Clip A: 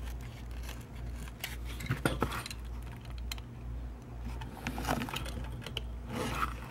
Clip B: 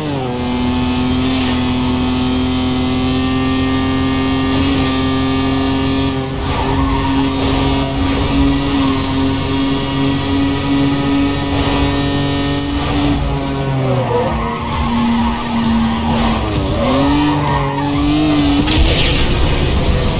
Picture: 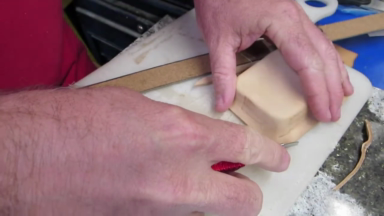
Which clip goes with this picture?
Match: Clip A